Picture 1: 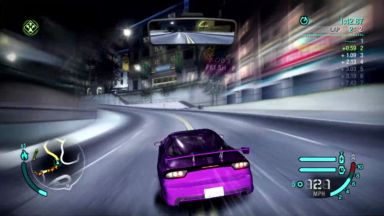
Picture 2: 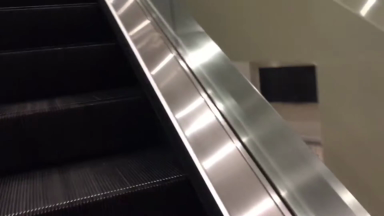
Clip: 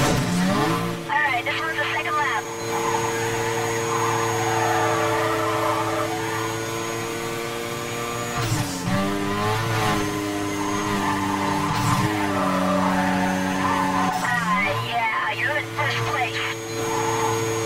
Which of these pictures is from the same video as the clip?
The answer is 1